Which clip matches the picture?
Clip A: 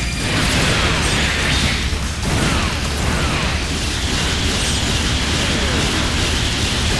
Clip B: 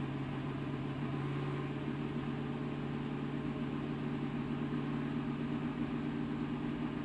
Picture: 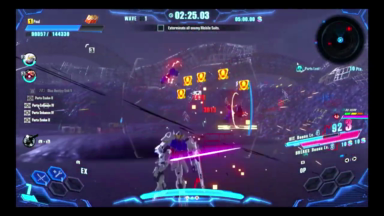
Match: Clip A